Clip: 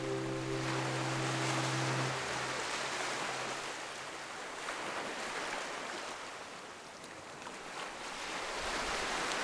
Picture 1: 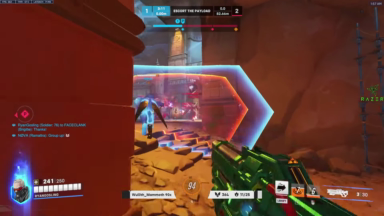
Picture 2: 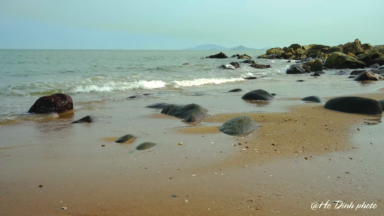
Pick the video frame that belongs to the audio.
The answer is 2